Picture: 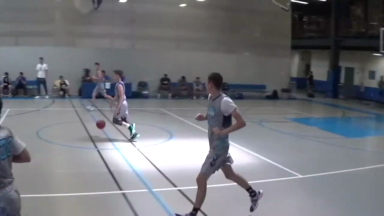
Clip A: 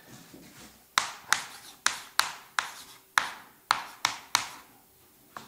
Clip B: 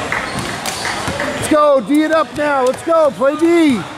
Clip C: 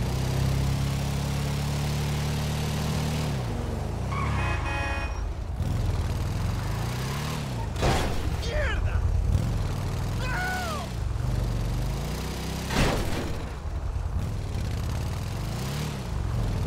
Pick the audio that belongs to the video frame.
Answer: B